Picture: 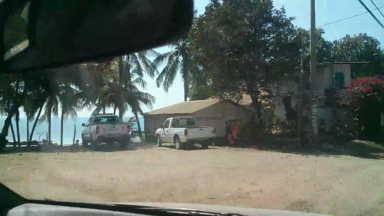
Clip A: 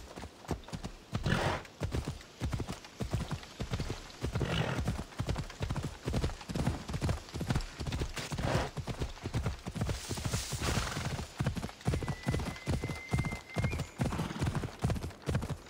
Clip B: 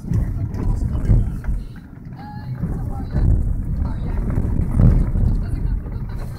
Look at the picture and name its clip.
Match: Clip B